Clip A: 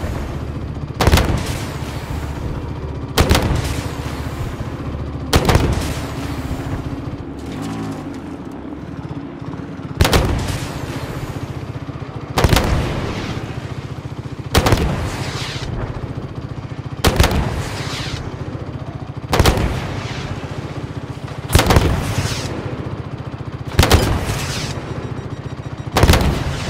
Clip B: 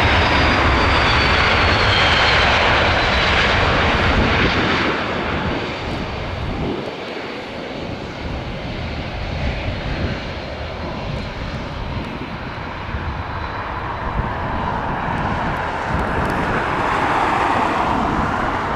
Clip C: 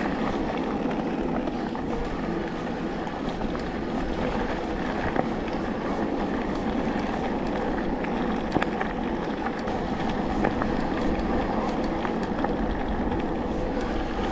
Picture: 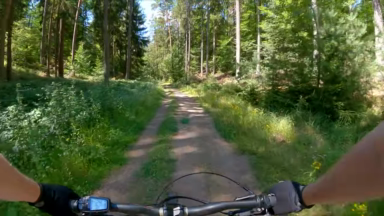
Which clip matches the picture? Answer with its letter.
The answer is C